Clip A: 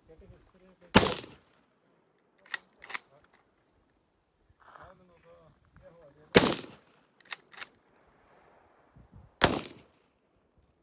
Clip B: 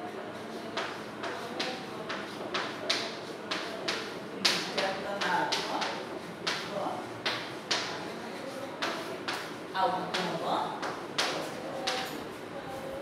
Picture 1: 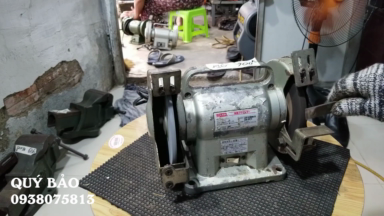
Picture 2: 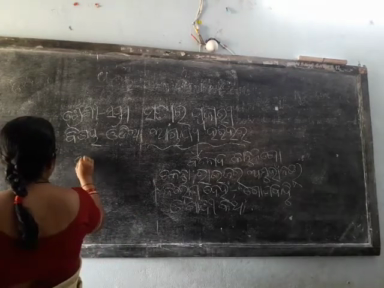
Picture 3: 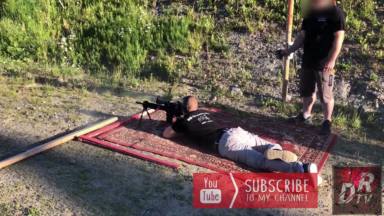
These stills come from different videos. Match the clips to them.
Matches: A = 3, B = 2